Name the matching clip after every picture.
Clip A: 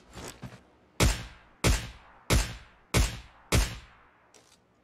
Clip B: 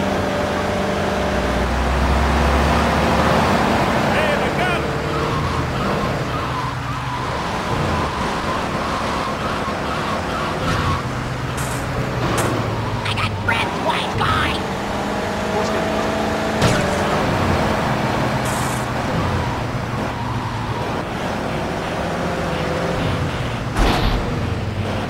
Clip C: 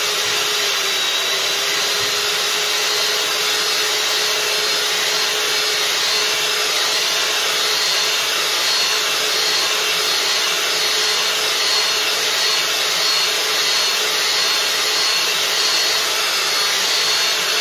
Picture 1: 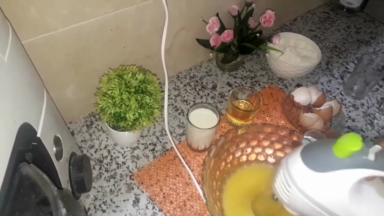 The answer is C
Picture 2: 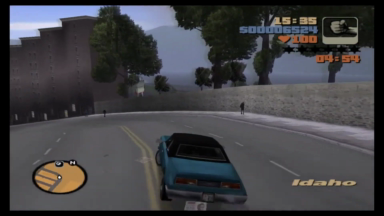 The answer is B